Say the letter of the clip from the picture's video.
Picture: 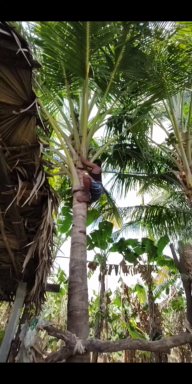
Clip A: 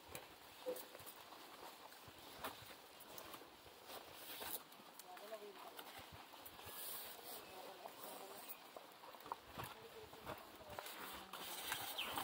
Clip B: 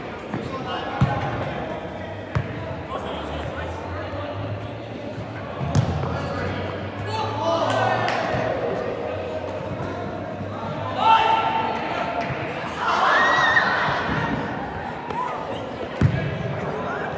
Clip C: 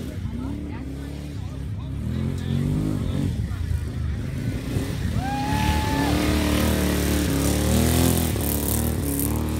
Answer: A